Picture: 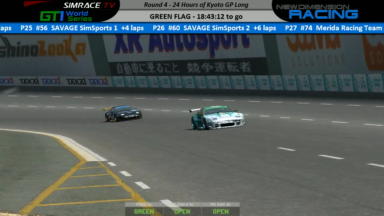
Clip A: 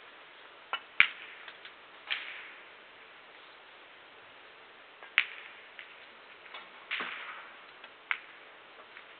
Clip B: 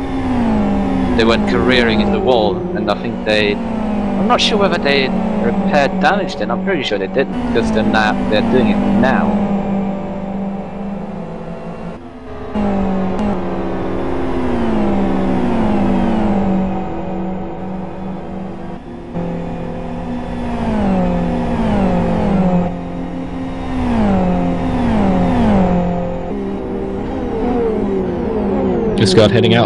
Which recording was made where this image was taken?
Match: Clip B